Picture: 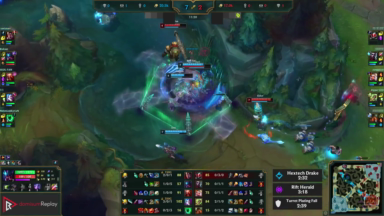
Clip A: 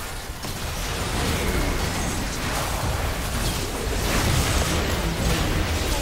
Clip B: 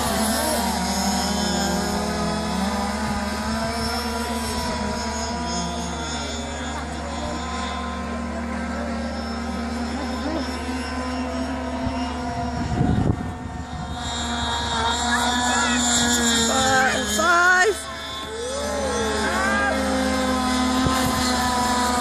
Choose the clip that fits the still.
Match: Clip A